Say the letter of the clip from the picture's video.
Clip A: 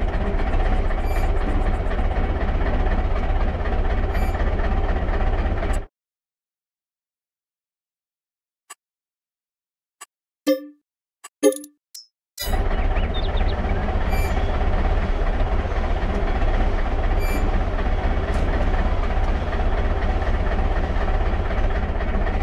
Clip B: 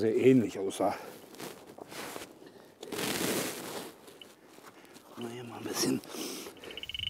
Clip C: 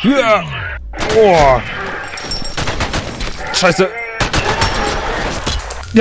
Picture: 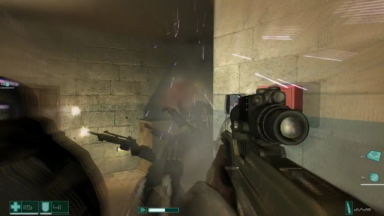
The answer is C